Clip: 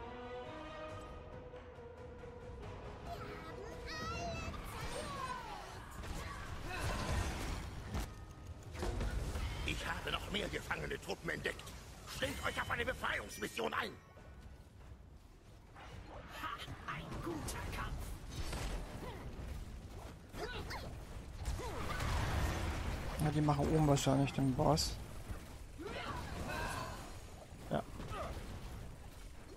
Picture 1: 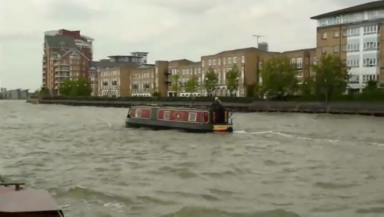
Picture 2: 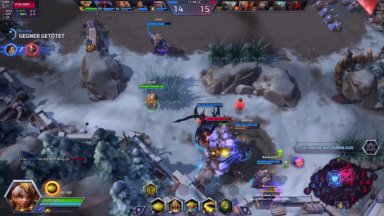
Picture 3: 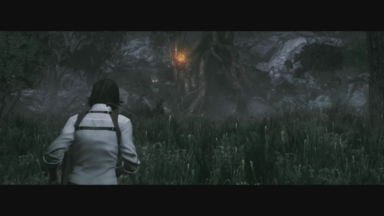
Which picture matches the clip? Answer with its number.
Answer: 2